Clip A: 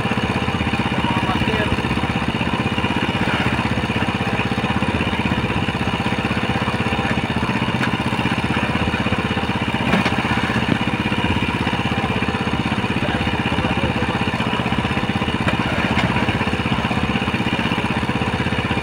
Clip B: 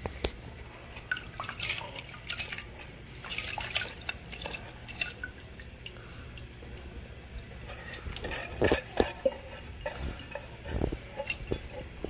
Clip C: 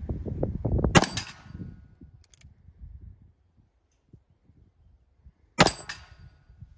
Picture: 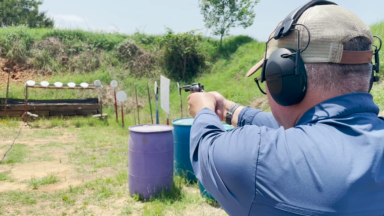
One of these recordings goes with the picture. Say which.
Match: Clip C